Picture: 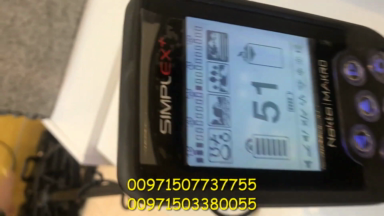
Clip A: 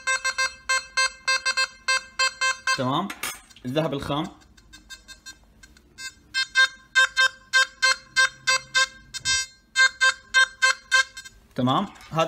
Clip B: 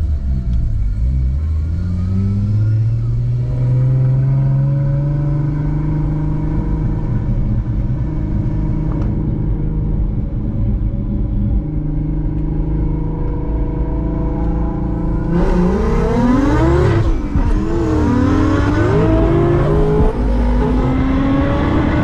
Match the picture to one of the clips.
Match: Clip A